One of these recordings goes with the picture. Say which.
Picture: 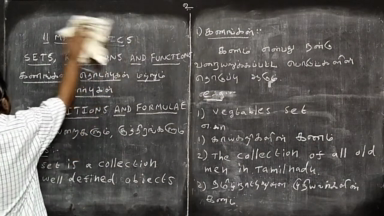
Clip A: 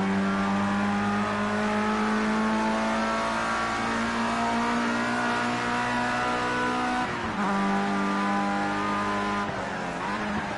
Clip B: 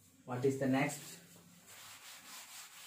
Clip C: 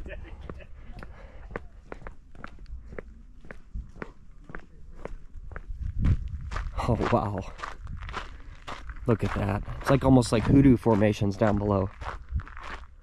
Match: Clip B